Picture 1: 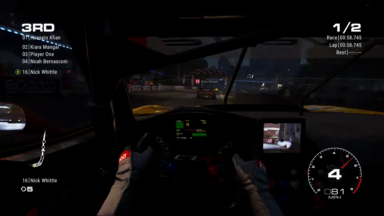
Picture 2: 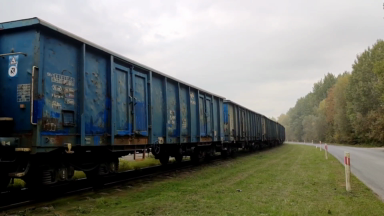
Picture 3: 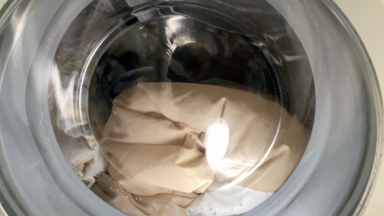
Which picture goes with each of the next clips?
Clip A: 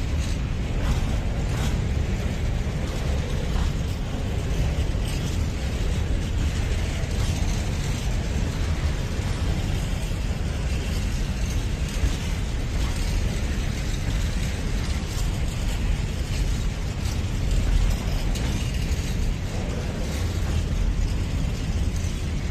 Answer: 2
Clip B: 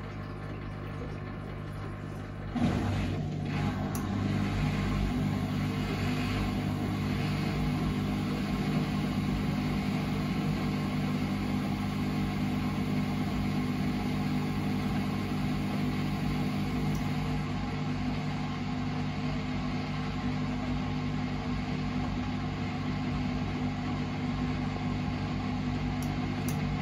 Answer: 3